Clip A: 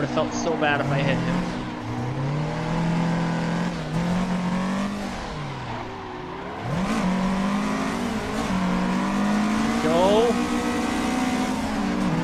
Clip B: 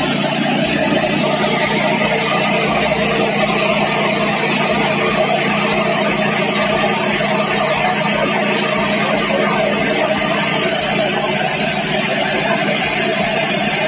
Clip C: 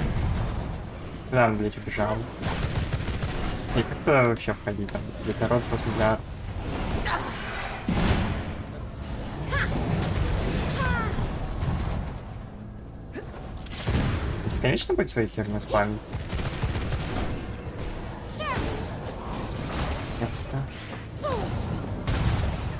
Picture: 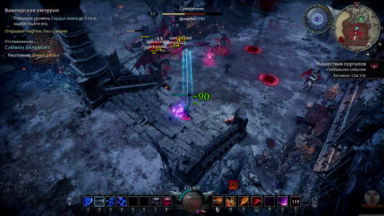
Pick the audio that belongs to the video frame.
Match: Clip C